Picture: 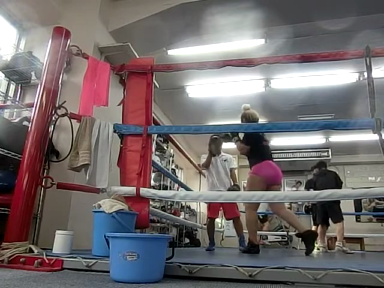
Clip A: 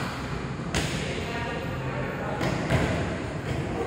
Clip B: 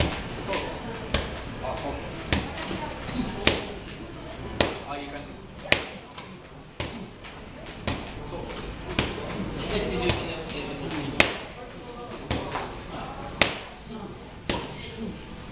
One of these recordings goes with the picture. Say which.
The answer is B